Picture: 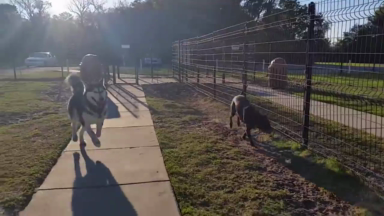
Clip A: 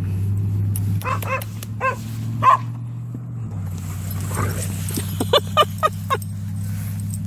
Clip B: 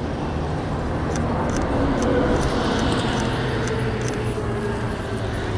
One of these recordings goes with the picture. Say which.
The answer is A